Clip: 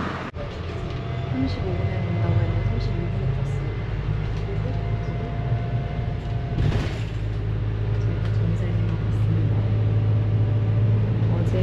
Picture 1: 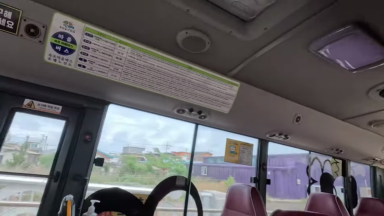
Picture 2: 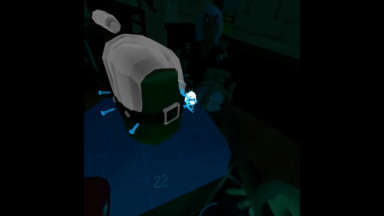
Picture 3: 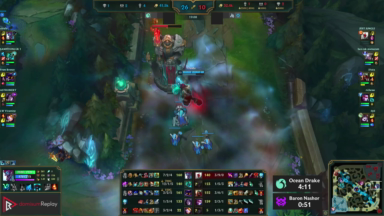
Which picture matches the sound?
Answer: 1